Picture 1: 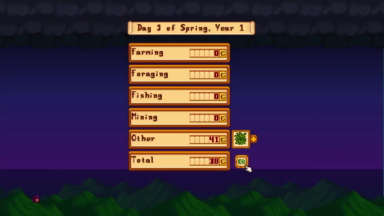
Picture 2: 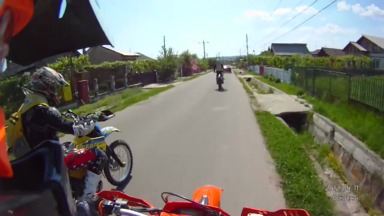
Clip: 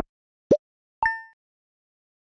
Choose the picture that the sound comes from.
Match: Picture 1